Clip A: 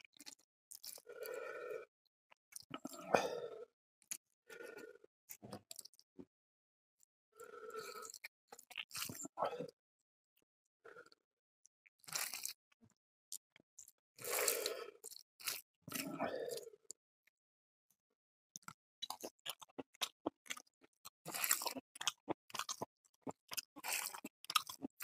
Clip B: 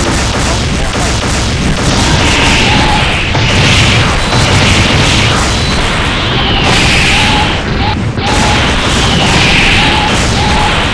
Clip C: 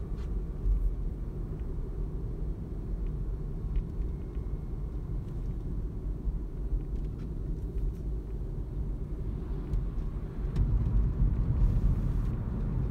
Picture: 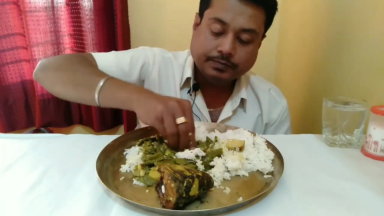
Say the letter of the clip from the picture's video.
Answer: A